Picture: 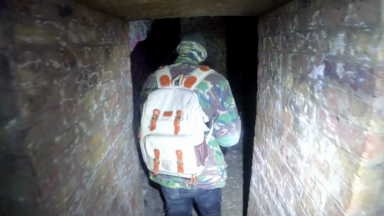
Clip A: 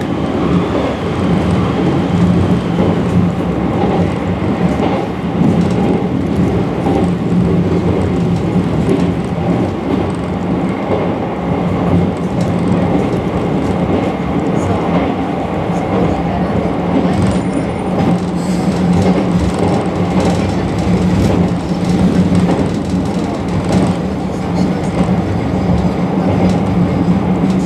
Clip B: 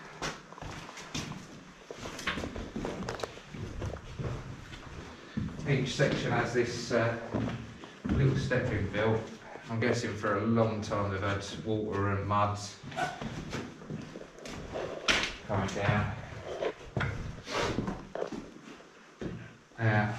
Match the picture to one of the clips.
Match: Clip B